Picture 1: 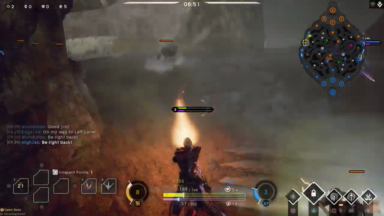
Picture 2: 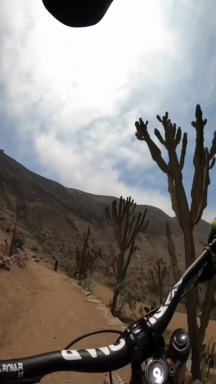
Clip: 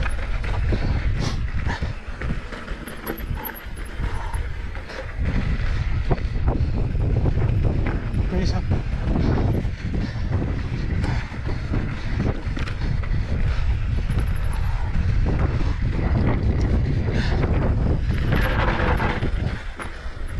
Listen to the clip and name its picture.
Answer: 2